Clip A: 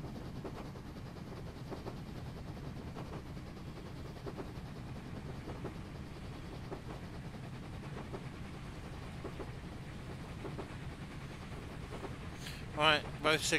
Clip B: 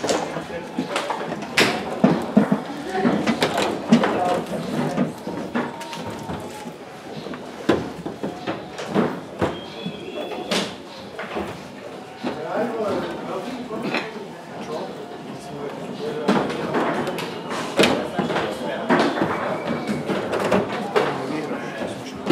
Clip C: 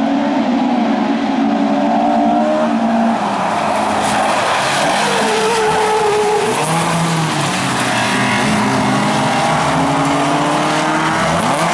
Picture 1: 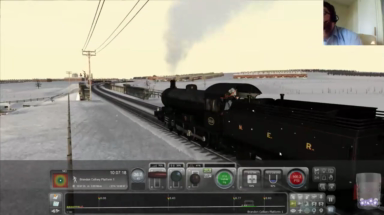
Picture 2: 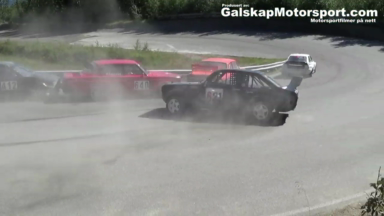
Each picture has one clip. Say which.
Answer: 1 A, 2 C